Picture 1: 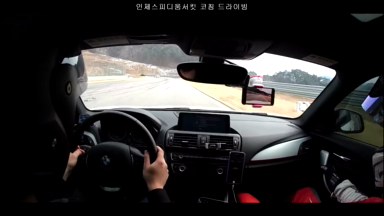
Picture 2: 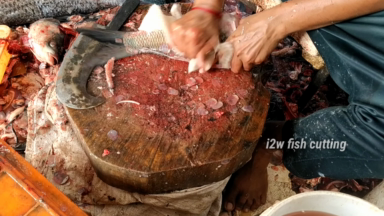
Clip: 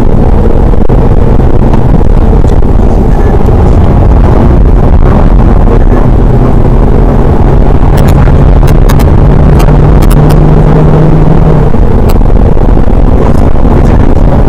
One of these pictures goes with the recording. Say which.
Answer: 1